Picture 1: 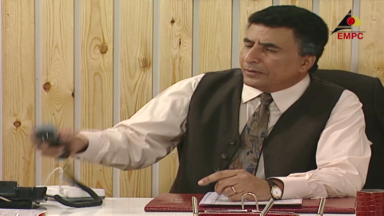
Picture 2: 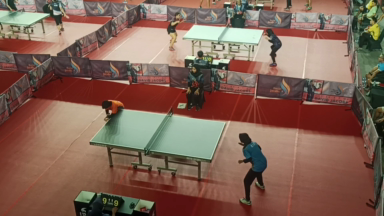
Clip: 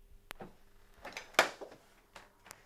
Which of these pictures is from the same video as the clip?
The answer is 1